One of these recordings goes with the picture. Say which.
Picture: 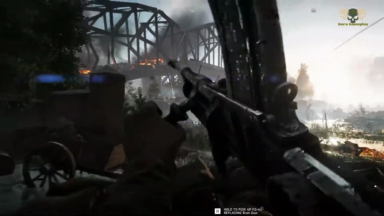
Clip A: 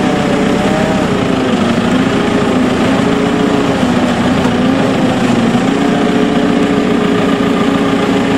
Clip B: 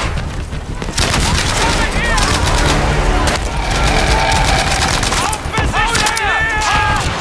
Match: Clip B